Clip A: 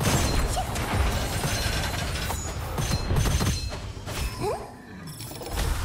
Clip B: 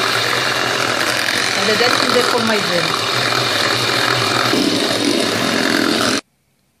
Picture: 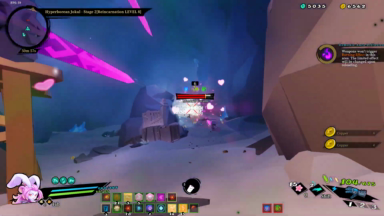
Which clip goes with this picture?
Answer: A